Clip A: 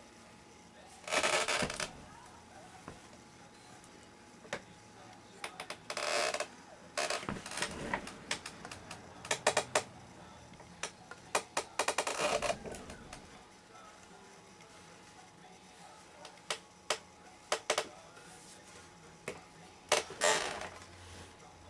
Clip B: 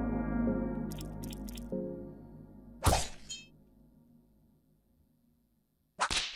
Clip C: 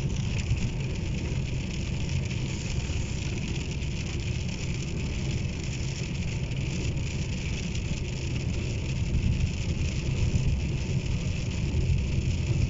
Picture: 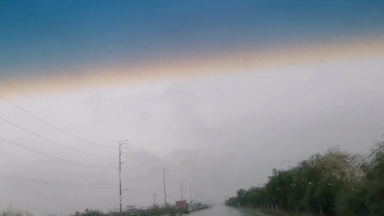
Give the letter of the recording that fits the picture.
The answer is C